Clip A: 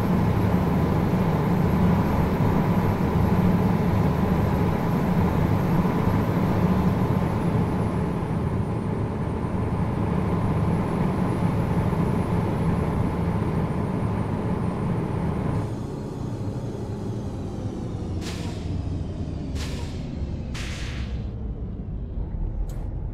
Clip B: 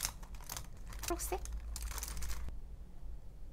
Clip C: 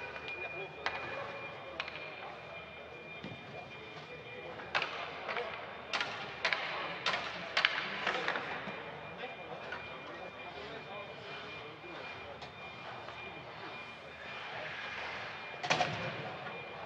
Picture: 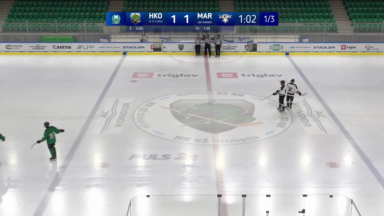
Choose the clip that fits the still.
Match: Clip C